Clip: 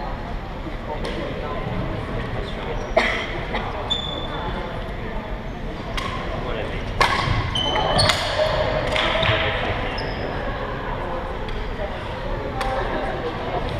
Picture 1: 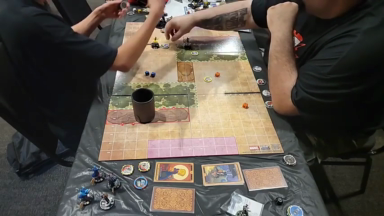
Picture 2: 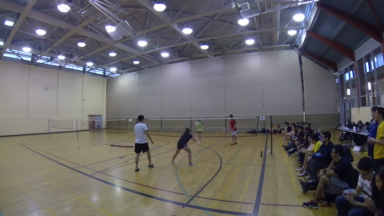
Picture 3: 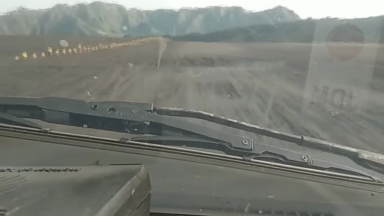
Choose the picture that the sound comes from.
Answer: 2